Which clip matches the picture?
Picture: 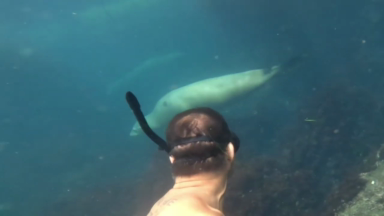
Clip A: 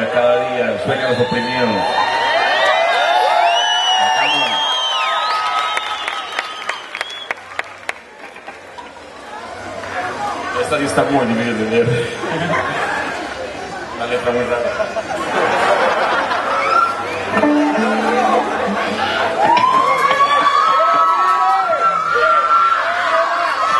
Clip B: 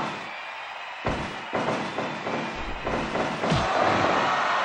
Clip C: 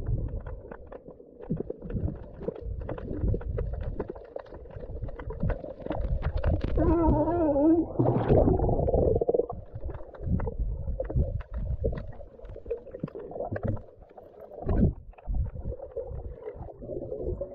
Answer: C